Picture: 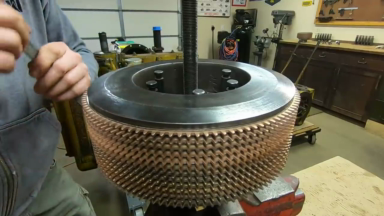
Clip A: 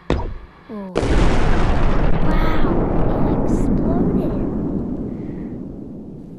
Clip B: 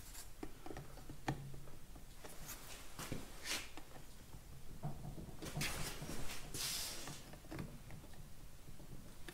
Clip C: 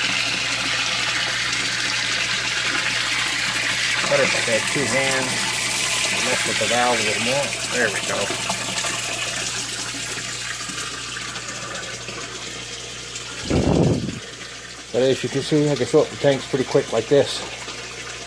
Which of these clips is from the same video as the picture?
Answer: B